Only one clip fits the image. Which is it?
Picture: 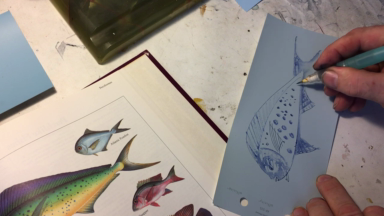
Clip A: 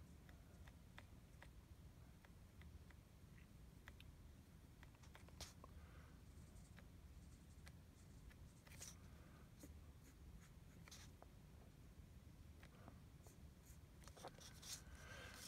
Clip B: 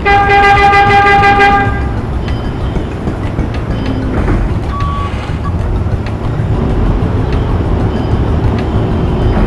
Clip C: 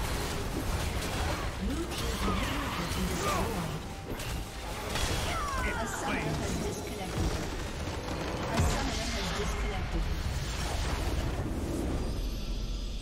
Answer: A